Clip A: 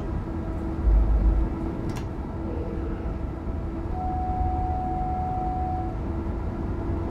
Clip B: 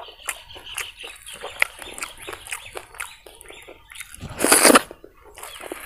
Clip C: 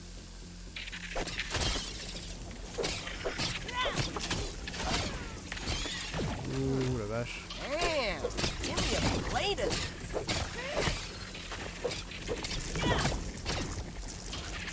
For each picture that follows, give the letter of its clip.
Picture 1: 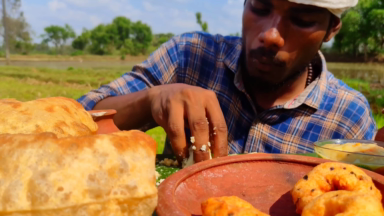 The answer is B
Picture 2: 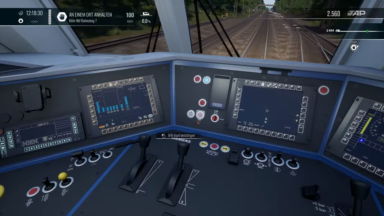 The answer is A